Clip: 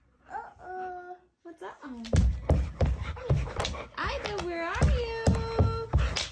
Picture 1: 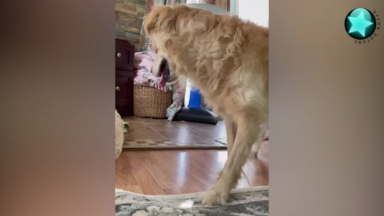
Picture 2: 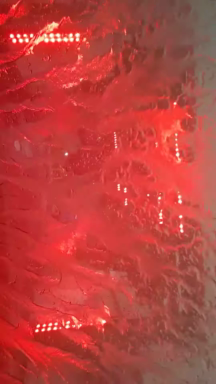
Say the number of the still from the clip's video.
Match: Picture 1